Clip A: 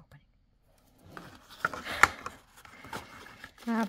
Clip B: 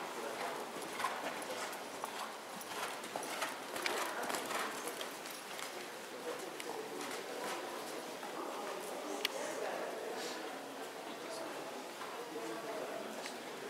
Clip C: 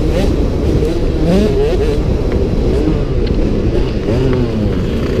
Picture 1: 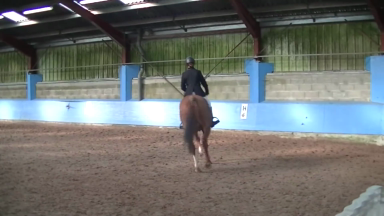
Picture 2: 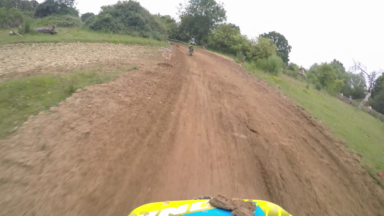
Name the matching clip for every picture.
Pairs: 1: B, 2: C